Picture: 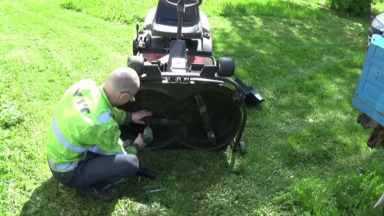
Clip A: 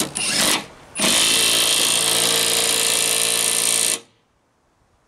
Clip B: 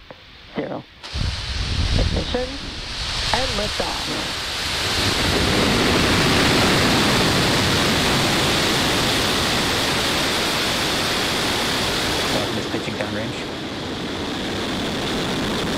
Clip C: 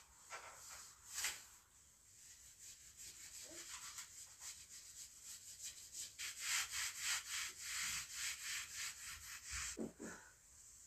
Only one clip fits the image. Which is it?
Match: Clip A